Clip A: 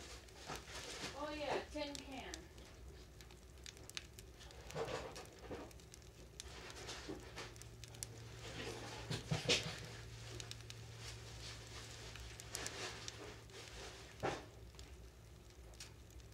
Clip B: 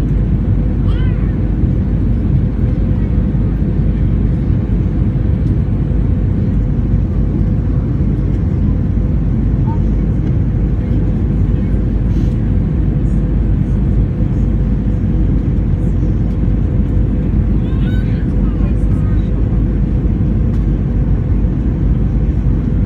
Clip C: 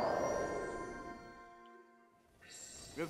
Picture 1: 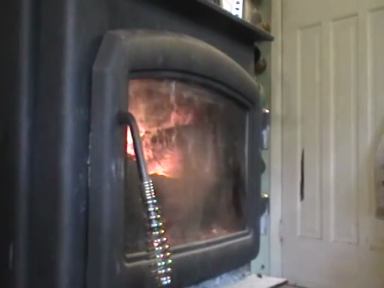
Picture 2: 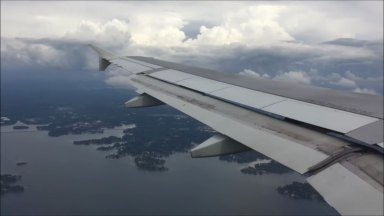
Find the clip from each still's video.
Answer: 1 A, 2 B